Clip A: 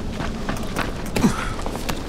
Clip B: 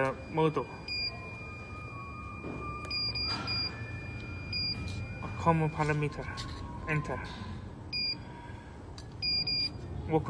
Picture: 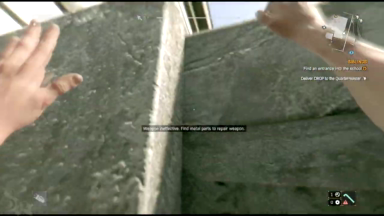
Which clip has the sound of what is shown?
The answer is A